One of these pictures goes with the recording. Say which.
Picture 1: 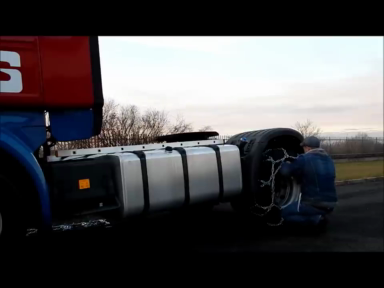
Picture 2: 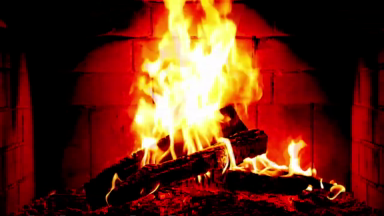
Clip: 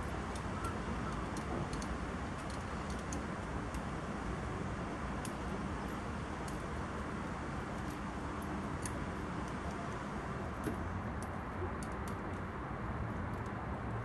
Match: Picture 1